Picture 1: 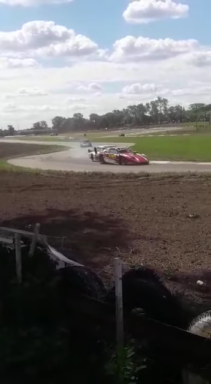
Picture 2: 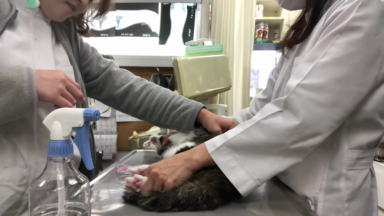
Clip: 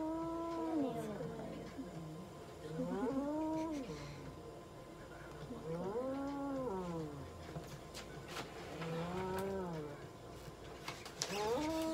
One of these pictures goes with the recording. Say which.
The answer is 2